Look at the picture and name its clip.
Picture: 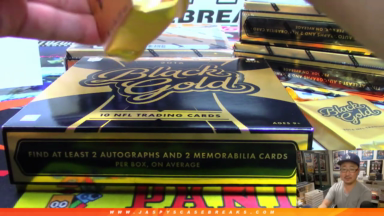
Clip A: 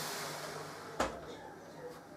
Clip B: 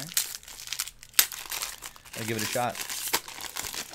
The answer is B